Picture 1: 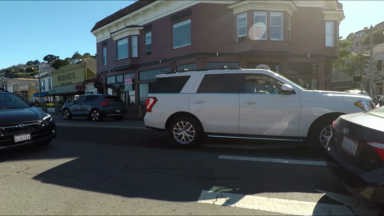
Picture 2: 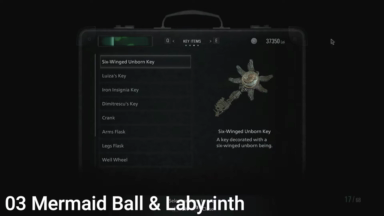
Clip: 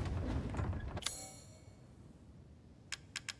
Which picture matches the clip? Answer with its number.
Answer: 2